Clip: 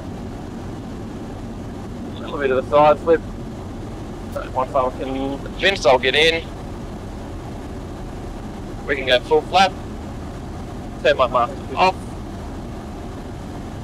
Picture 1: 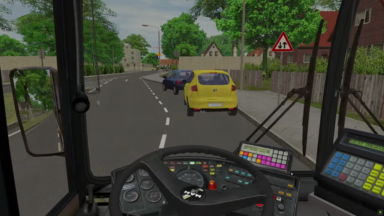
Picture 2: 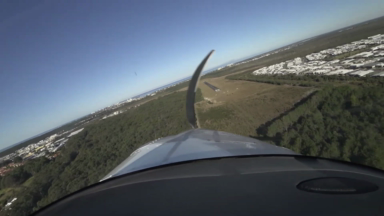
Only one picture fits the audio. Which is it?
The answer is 2